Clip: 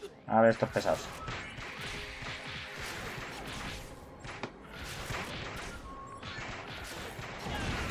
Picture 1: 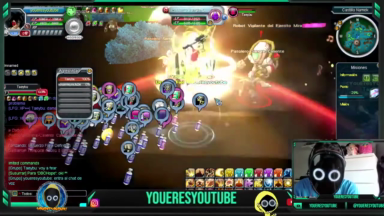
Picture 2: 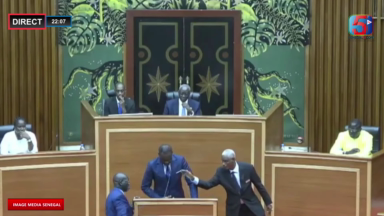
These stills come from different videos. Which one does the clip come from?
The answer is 1